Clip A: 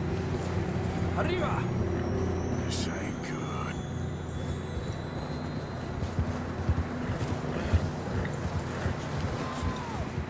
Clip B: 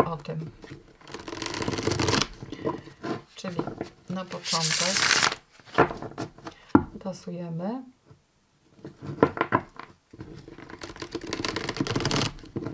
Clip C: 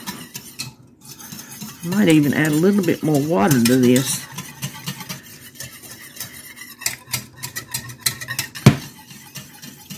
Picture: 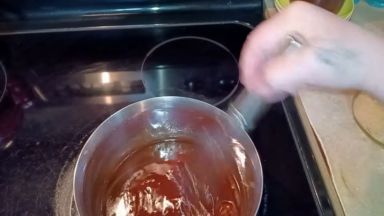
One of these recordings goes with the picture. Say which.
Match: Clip C